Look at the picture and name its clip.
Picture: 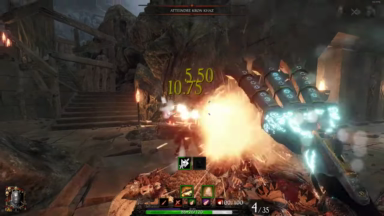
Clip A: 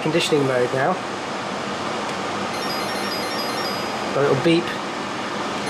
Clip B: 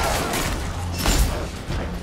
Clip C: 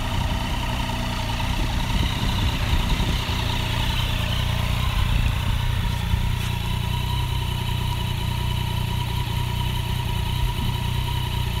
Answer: B